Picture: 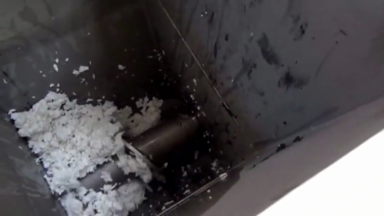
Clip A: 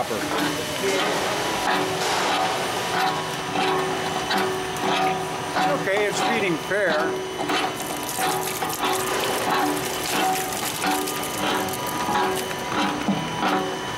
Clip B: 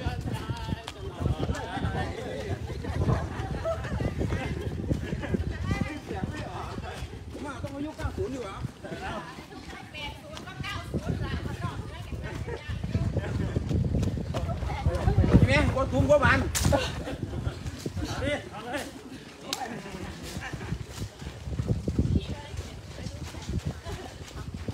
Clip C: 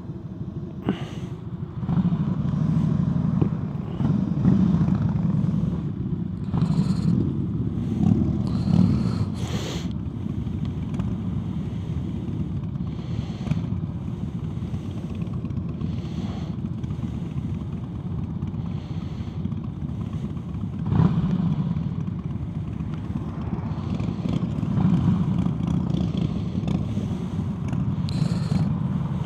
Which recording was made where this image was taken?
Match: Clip A